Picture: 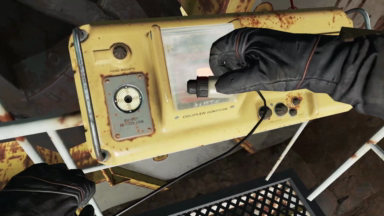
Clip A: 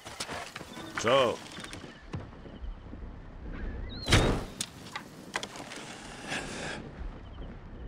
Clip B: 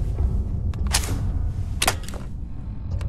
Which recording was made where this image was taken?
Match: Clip B